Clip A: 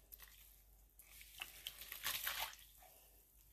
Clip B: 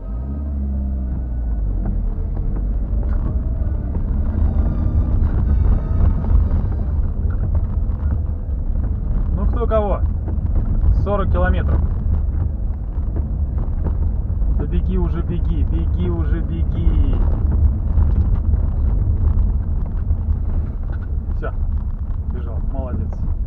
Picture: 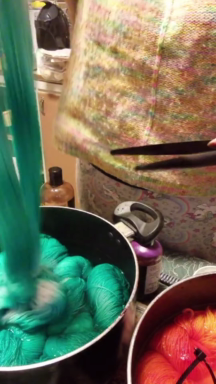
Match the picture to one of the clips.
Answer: A